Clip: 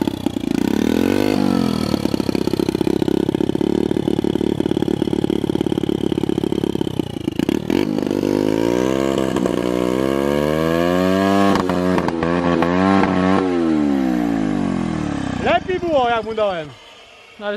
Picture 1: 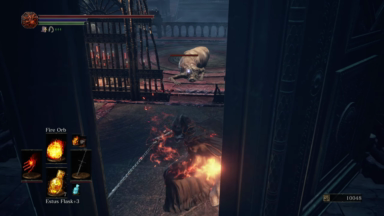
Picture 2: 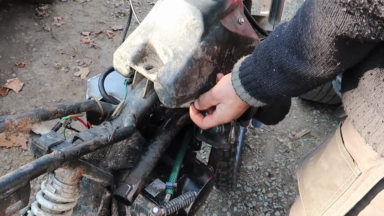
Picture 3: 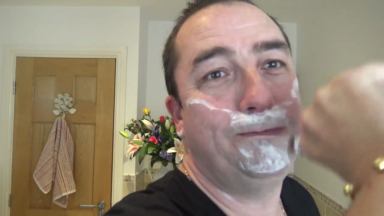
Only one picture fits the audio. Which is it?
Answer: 2